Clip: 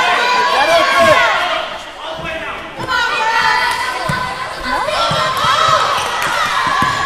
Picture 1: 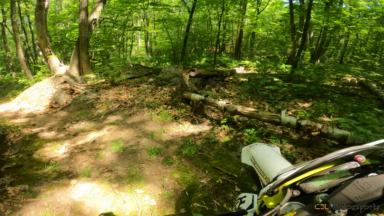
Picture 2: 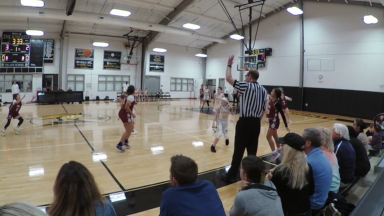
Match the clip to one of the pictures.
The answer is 2